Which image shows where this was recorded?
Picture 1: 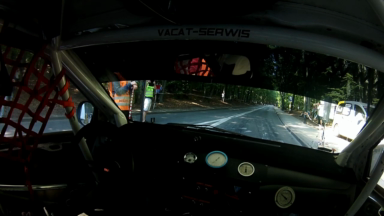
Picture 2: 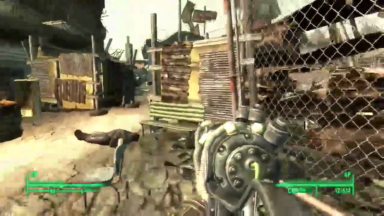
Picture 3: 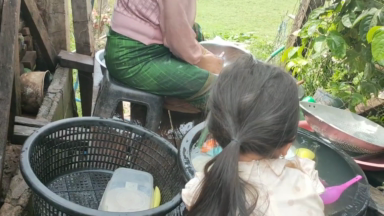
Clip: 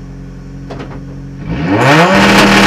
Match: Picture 1